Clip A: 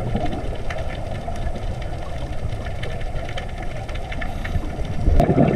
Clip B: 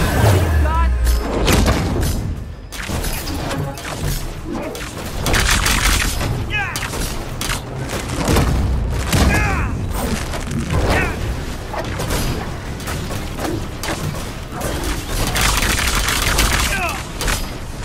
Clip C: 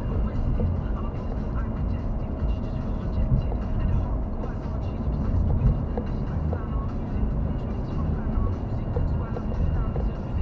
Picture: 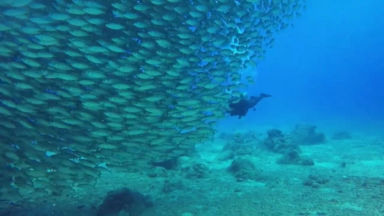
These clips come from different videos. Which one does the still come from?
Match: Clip A